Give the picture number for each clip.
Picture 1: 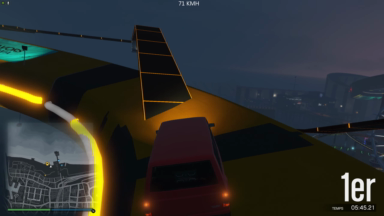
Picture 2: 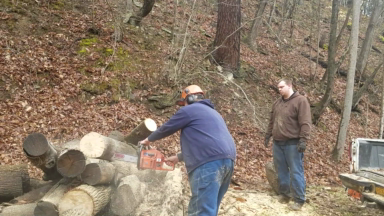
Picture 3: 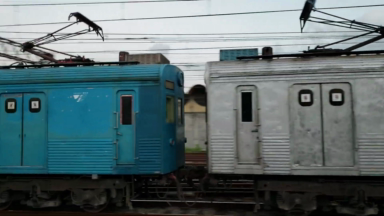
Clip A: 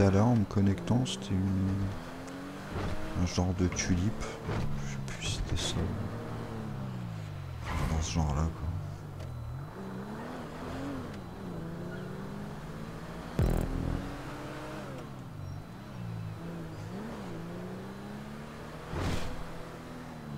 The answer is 1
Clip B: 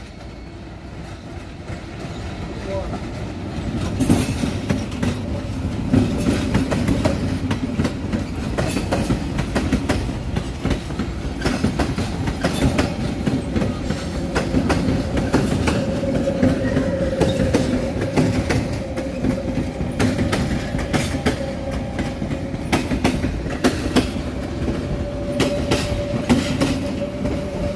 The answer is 3